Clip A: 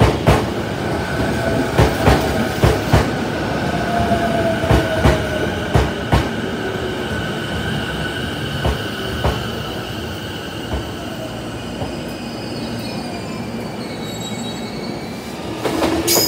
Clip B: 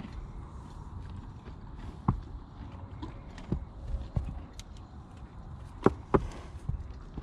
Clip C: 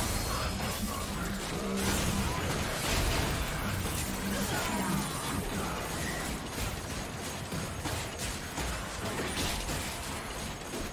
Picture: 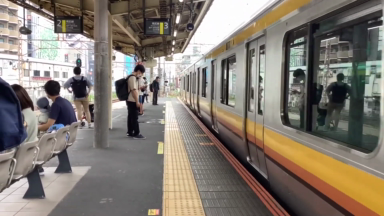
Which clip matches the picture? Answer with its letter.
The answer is A